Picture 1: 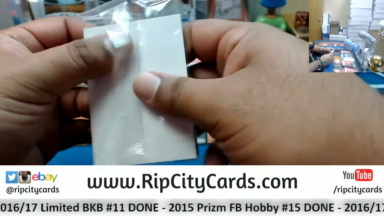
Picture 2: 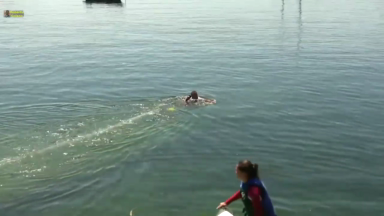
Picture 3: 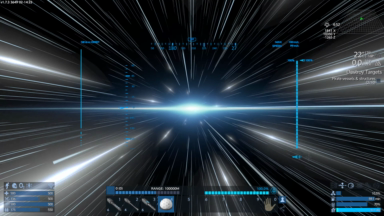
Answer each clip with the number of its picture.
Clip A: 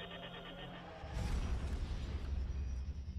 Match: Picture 3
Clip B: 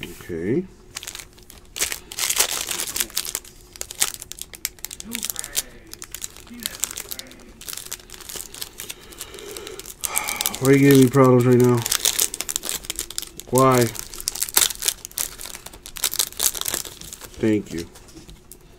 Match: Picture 1